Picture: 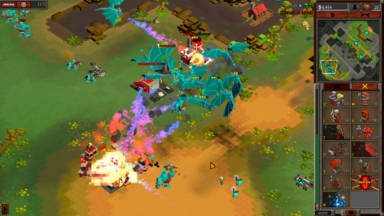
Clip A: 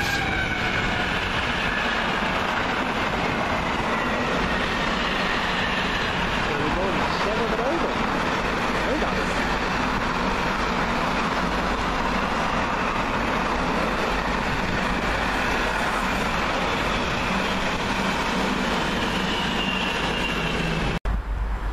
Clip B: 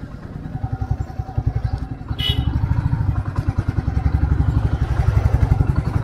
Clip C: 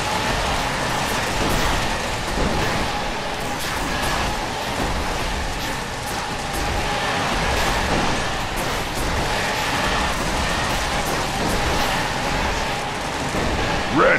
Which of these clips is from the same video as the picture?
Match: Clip C